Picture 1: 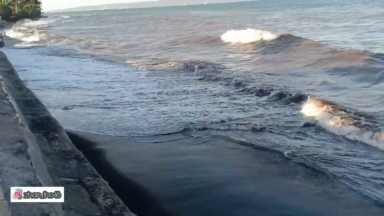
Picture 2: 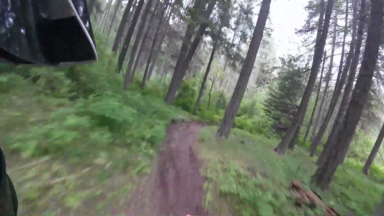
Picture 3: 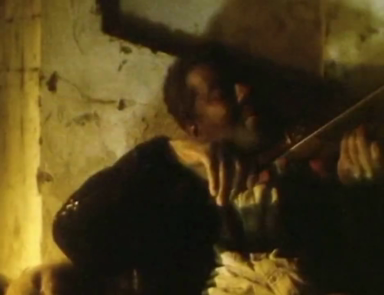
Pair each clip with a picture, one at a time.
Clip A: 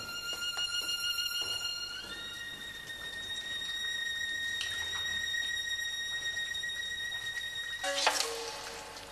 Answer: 3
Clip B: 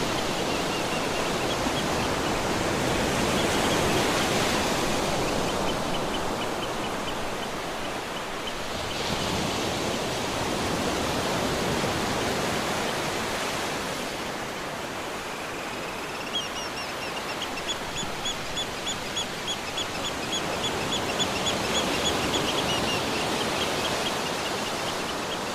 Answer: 1